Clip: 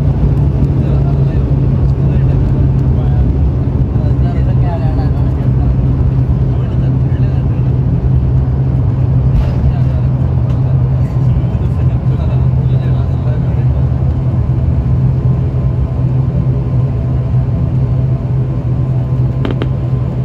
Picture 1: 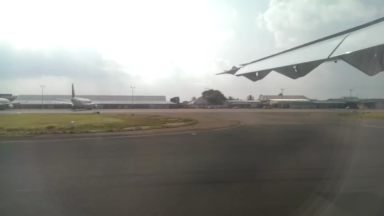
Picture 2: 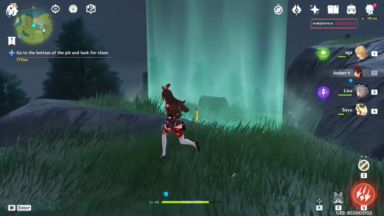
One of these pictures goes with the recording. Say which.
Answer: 1